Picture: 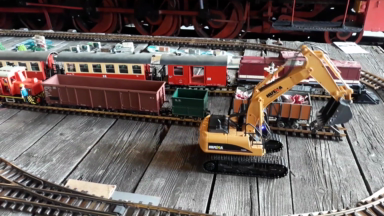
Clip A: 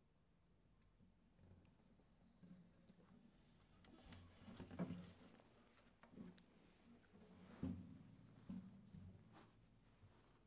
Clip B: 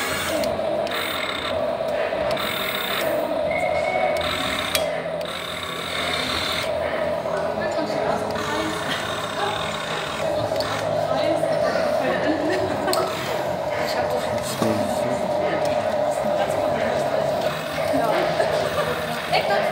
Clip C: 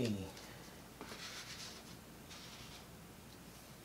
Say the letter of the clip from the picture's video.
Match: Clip B